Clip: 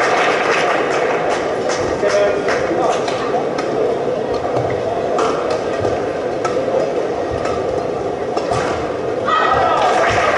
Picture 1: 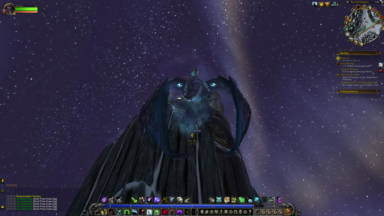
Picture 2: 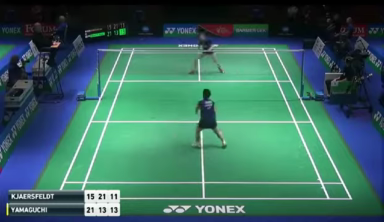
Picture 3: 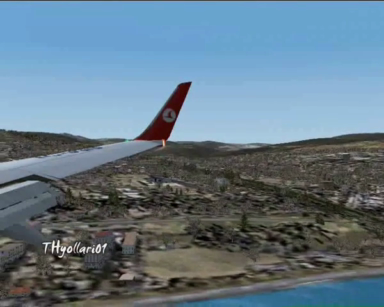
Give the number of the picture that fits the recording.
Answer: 2